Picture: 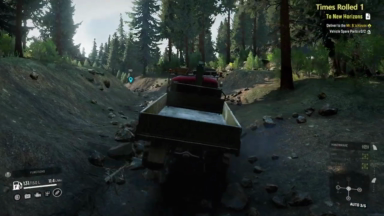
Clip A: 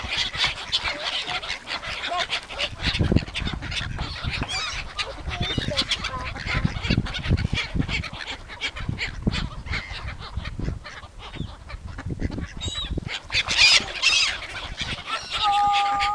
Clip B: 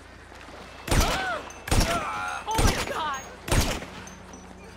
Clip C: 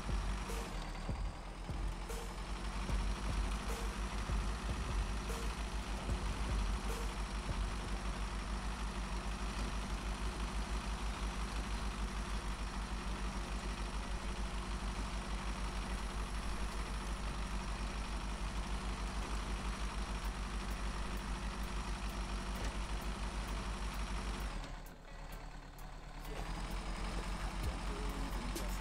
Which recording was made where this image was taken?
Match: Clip C